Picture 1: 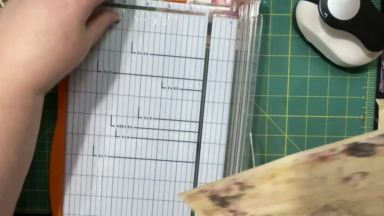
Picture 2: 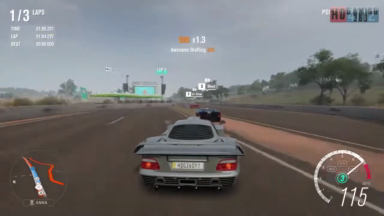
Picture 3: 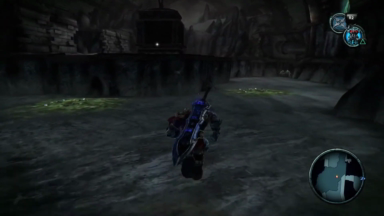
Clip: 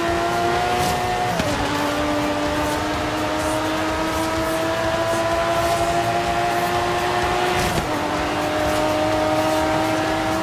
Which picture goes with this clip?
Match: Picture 2